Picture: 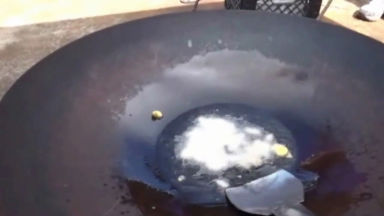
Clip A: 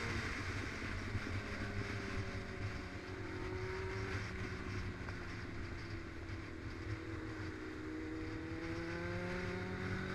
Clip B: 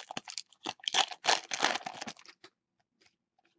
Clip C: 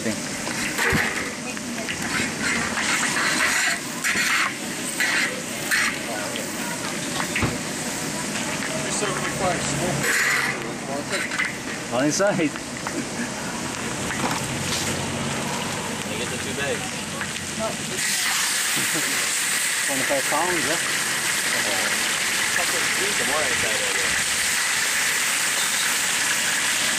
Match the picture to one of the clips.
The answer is C